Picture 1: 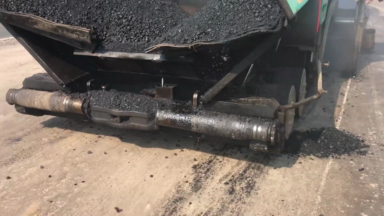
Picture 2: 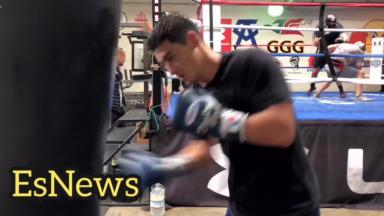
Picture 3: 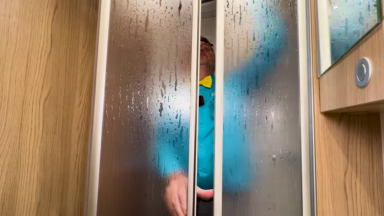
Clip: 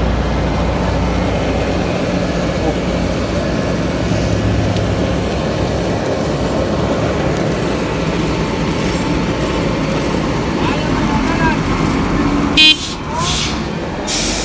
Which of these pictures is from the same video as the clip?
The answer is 1